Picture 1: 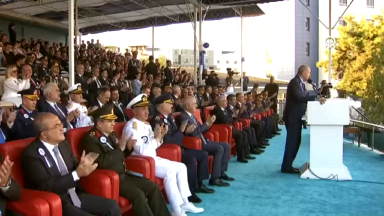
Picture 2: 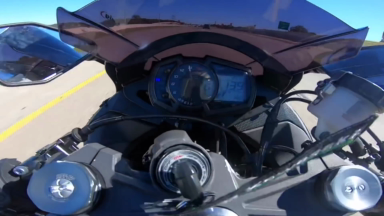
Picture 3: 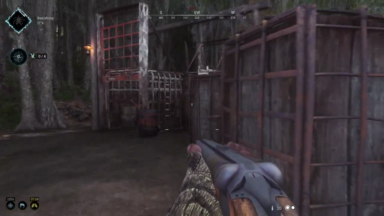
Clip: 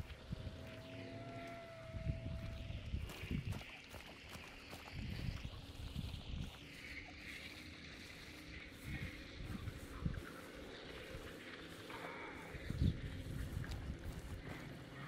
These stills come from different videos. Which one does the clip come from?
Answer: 3